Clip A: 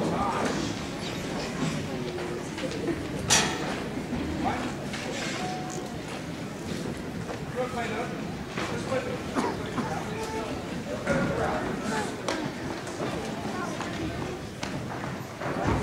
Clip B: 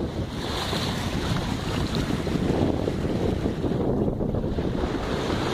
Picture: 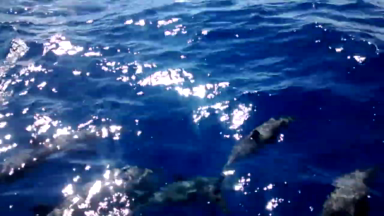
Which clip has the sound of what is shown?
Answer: B